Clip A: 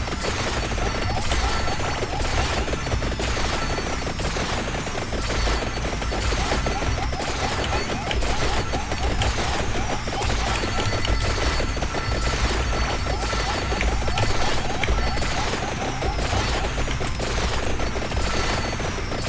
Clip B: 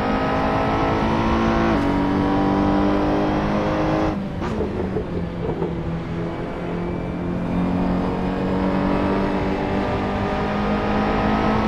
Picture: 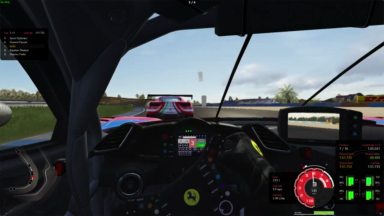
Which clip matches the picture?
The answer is B